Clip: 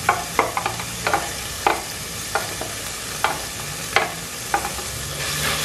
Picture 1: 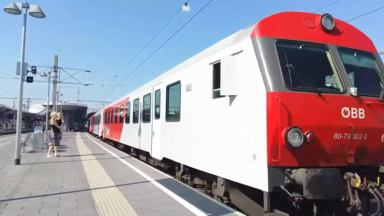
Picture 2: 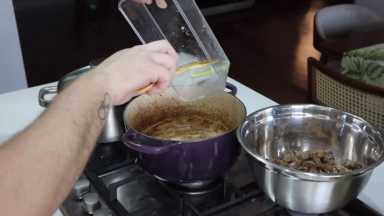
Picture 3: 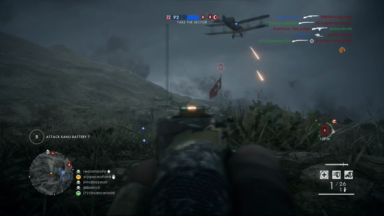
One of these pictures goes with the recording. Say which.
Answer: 2